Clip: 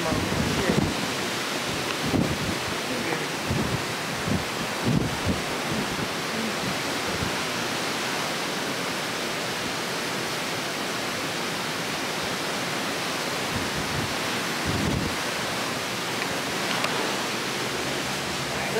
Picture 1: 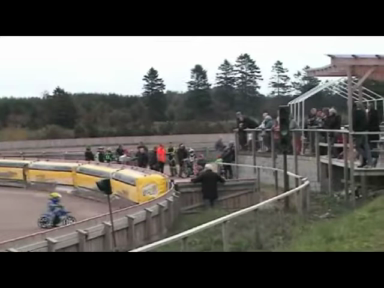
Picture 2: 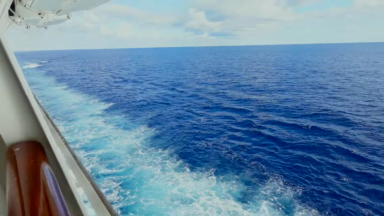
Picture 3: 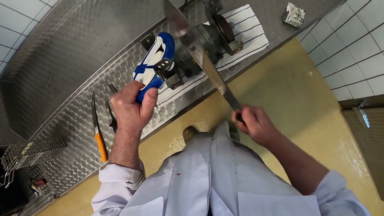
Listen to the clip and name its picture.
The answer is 2